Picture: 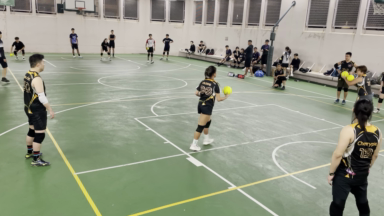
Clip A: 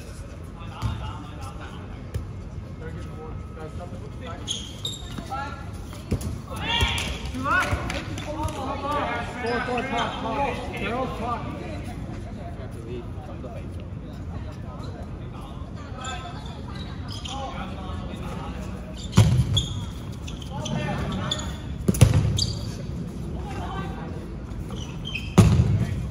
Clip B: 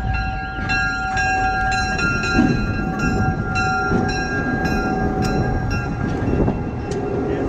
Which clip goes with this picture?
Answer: A